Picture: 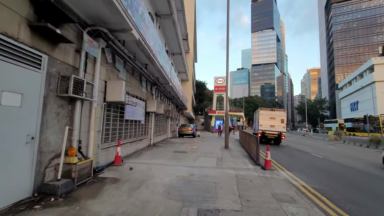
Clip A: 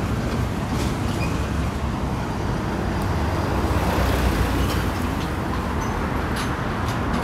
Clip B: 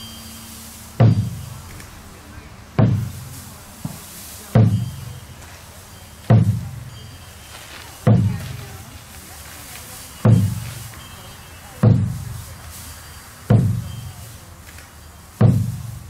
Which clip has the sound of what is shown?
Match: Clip A